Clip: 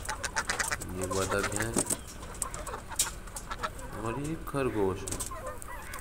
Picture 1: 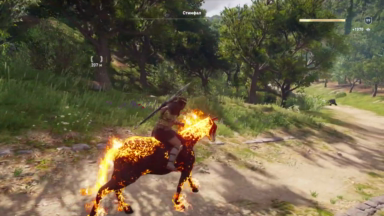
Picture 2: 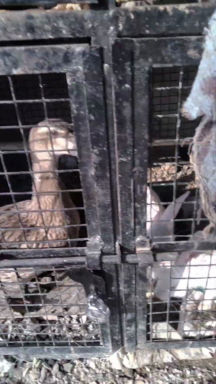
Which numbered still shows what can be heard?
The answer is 2